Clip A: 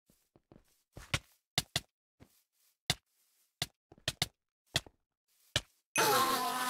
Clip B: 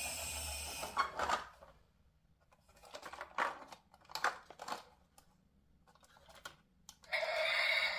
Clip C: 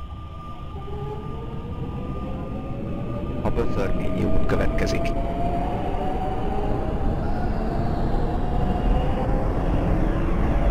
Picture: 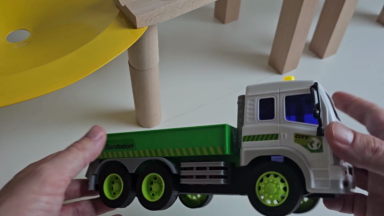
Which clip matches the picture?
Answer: B